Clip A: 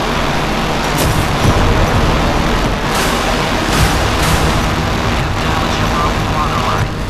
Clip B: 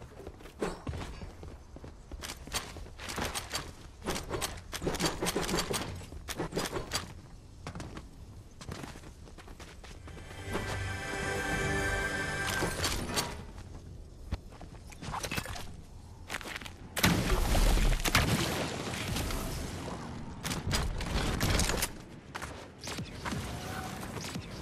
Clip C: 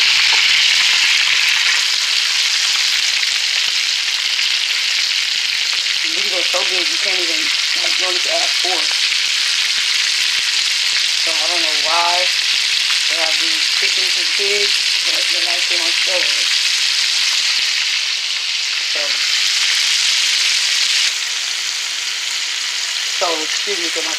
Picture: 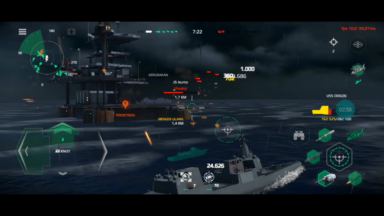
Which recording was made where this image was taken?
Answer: A